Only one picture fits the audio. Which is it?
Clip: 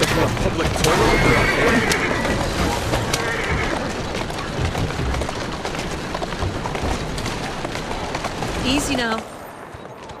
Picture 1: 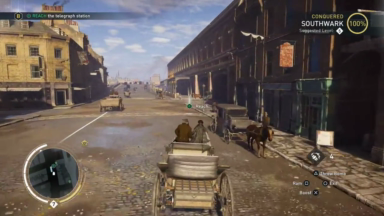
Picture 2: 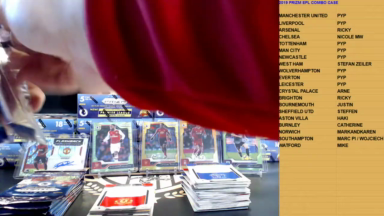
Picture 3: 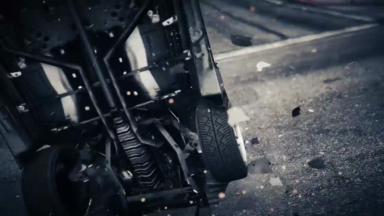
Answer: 1